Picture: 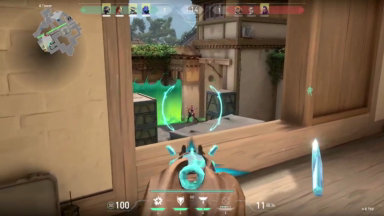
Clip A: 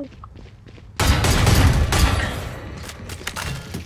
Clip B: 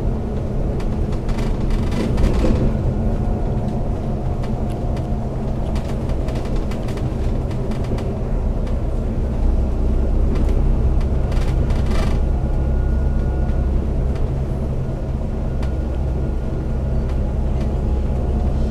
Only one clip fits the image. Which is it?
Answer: A